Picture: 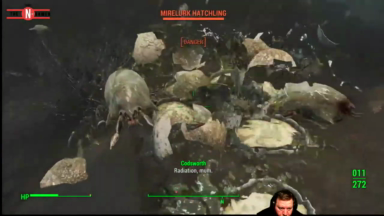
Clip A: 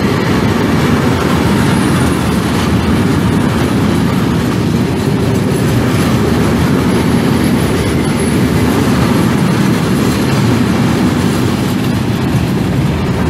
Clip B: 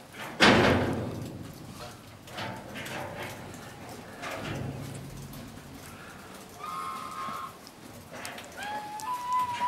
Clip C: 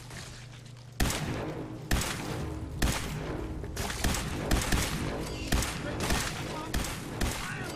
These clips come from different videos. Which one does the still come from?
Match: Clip C